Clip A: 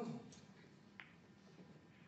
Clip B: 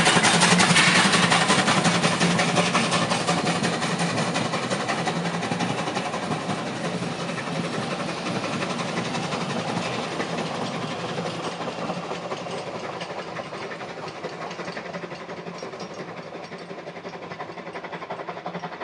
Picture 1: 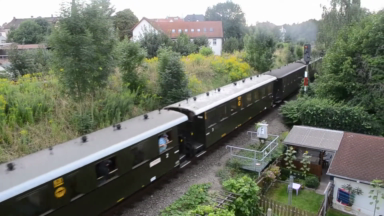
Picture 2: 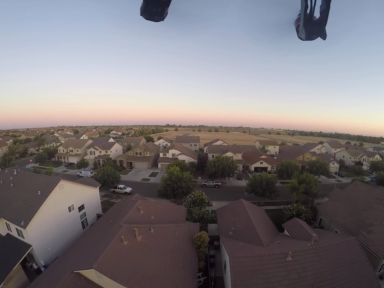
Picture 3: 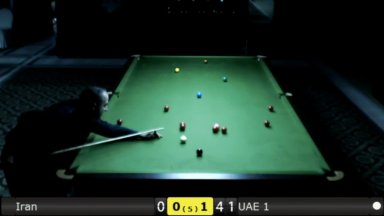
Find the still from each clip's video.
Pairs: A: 3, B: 1